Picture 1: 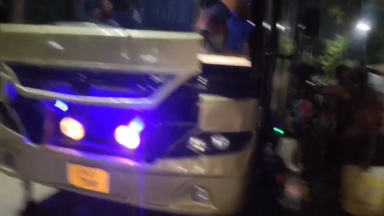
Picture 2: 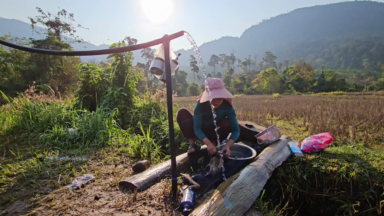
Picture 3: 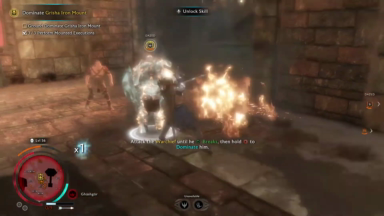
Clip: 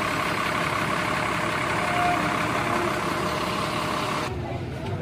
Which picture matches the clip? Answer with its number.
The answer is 1